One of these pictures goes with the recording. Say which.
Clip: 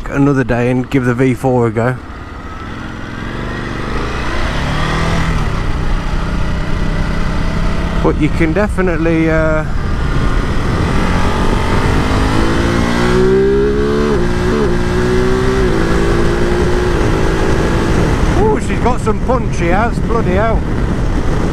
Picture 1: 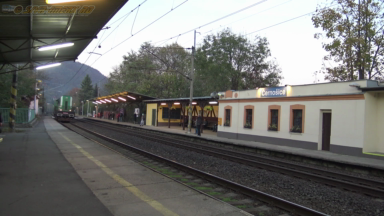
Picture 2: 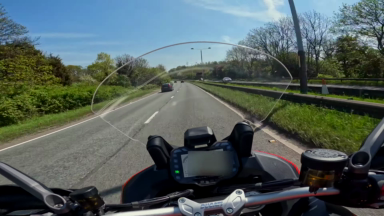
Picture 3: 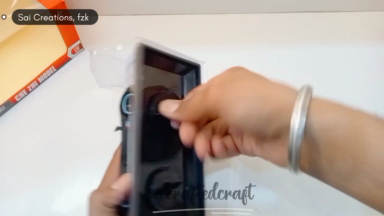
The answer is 2